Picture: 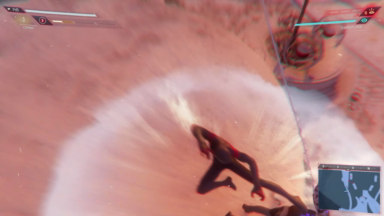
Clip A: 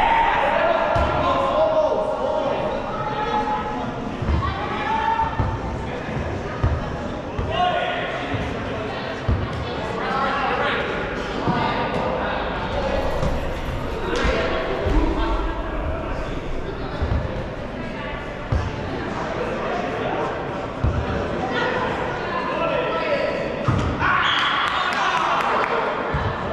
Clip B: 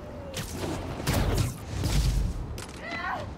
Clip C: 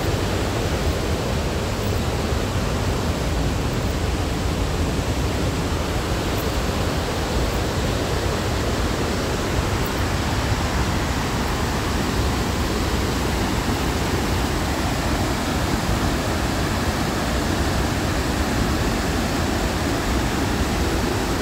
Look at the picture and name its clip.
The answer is B